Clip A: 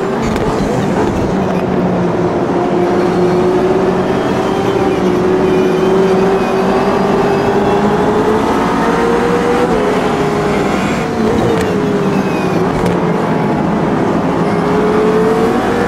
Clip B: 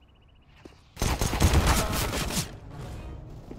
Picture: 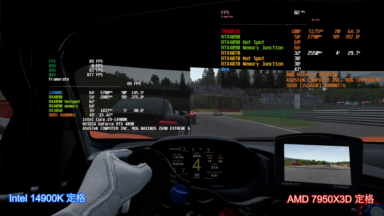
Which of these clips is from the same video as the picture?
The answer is A